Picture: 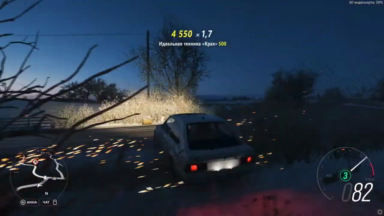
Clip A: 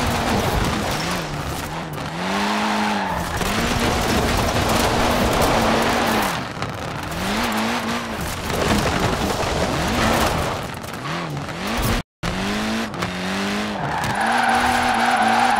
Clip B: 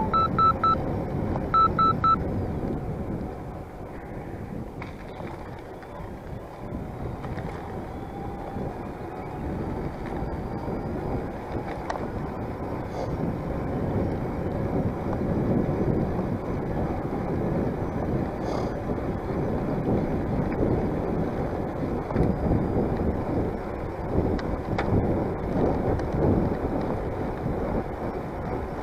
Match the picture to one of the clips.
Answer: A